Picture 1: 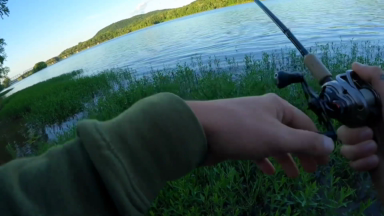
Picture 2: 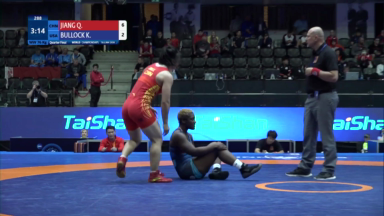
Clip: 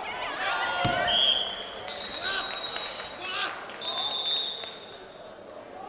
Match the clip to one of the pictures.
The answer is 2